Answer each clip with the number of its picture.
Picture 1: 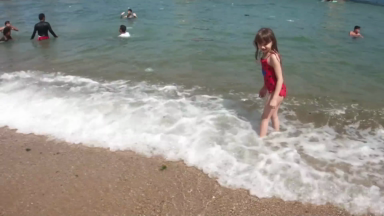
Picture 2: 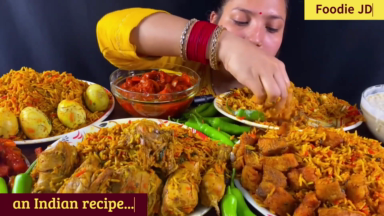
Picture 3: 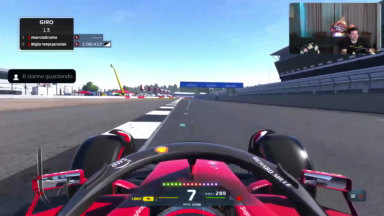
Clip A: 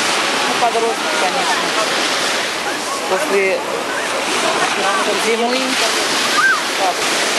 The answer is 1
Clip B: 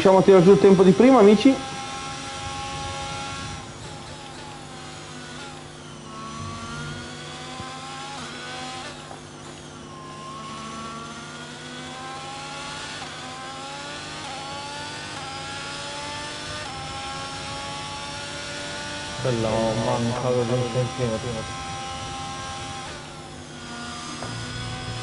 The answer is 3